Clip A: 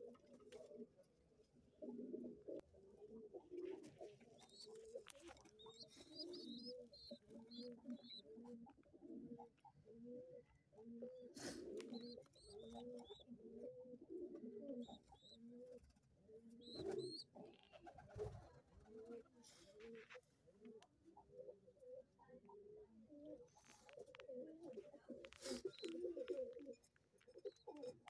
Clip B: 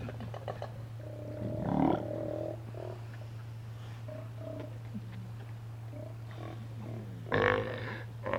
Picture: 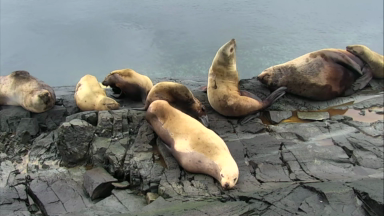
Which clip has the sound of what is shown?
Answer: B